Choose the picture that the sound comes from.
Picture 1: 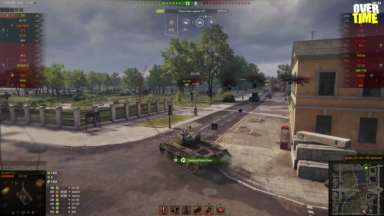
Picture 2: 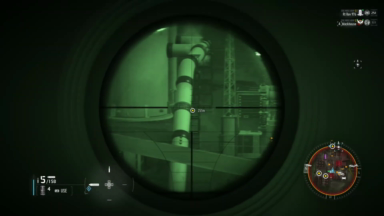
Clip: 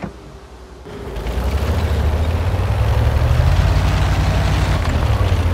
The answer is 1